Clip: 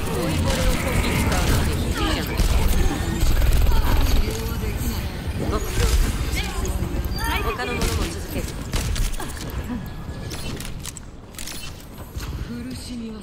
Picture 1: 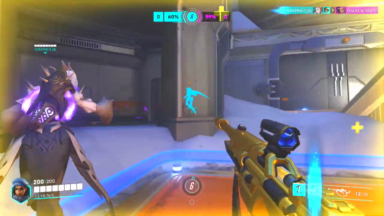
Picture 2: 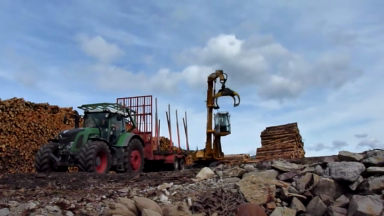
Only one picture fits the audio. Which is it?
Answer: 1